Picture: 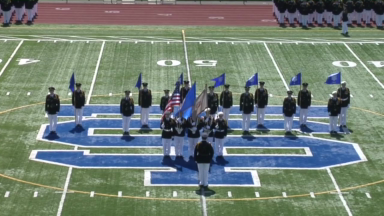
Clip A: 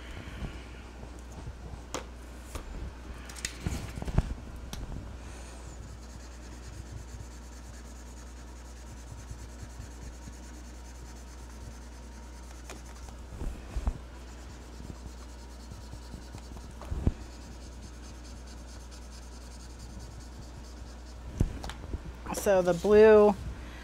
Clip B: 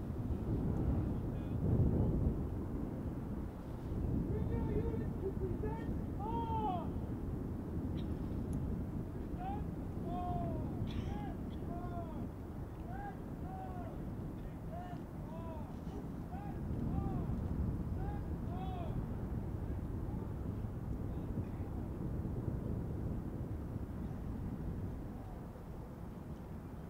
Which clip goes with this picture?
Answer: B